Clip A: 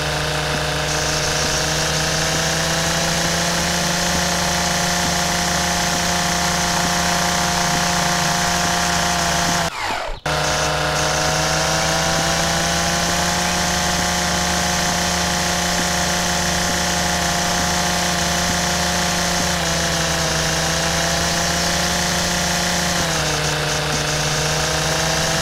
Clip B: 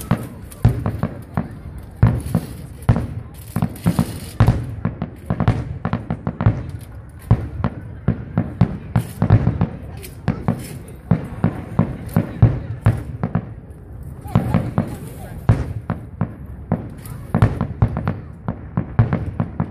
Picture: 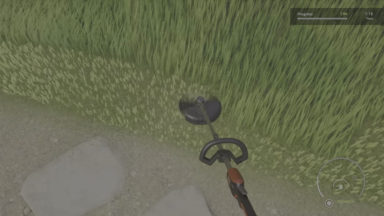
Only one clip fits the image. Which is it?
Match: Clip A